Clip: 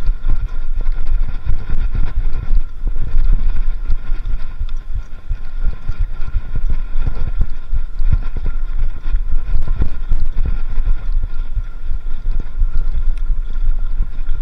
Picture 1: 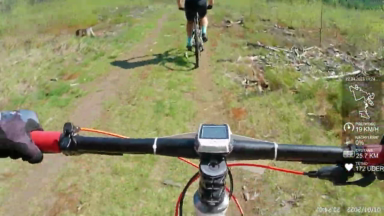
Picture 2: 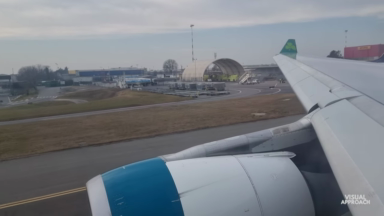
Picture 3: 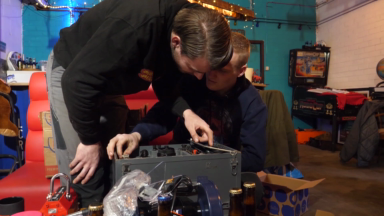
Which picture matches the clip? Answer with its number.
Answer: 1